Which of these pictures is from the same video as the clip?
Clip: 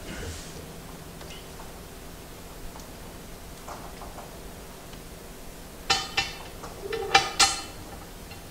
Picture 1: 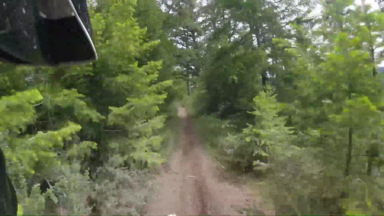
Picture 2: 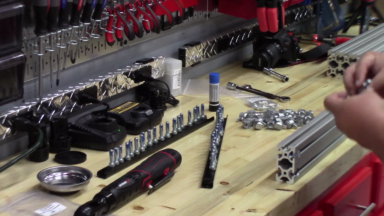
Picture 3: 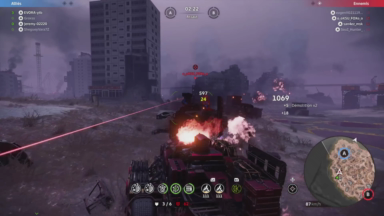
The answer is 2